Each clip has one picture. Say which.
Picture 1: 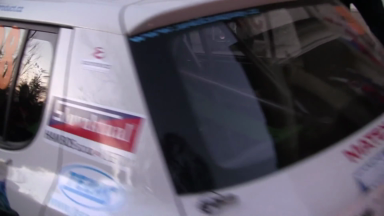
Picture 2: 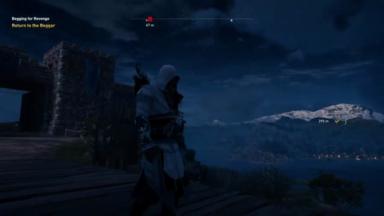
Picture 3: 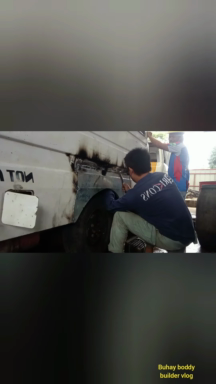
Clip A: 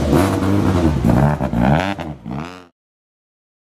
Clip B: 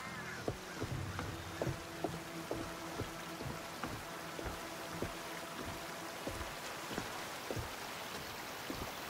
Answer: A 1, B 2